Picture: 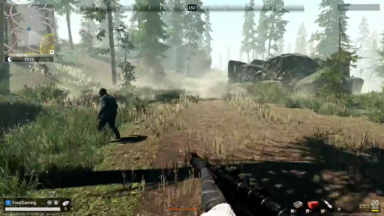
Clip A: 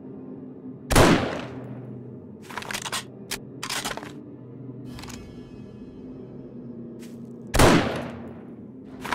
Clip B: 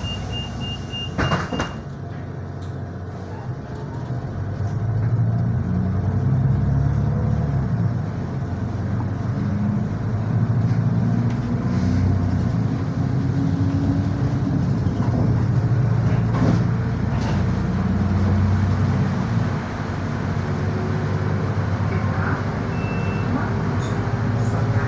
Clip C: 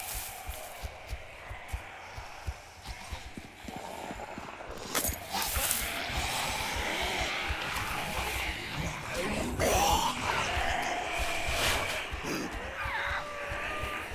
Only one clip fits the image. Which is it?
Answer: C